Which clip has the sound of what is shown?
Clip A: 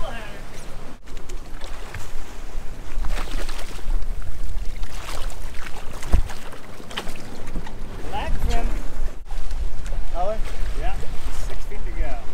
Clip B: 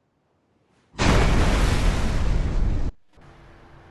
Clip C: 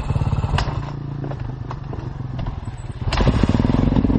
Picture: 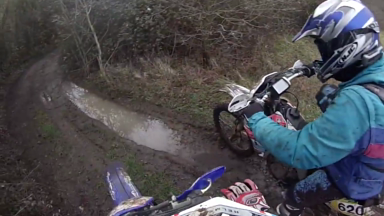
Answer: C